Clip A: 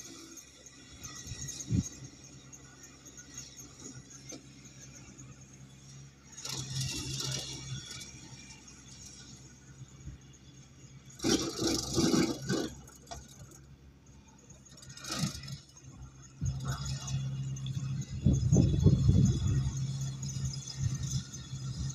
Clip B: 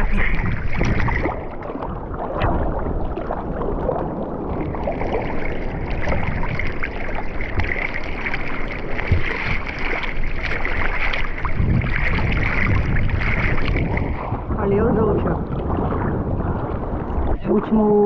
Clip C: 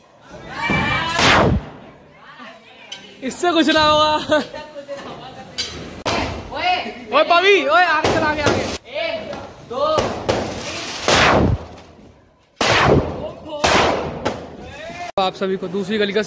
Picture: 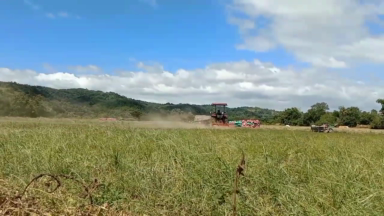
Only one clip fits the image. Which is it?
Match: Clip A